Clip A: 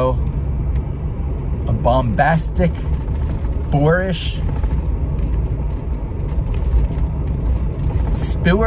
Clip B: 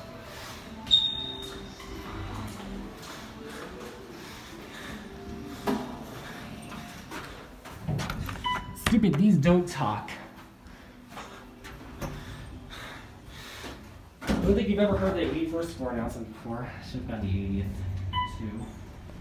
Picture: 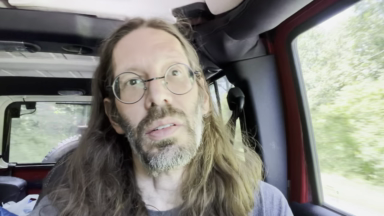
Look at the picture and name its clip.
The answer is A